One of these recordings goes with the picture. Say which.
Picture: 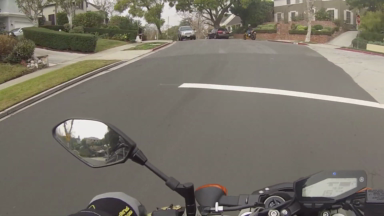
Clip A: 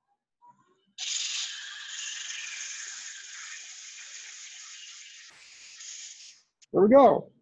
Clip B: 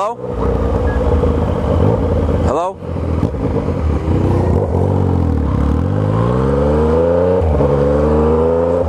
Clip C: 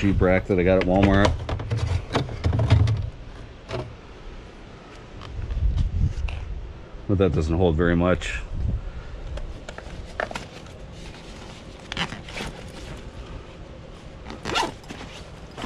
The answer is B